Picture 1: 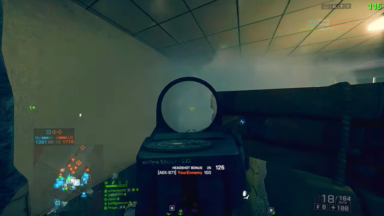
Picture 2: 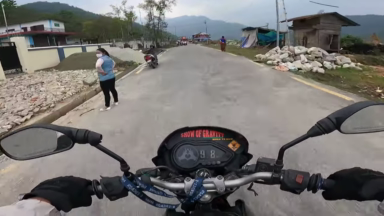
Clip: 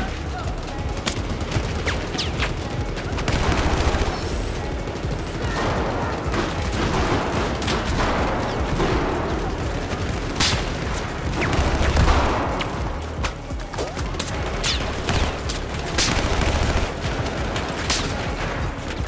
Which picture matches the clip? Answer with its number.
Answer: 1